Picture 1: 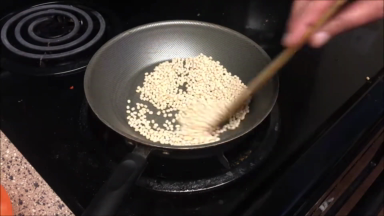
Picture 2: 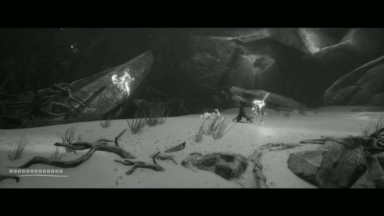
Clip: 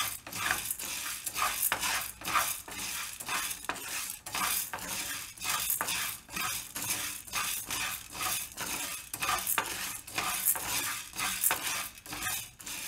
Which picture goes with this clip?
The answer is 1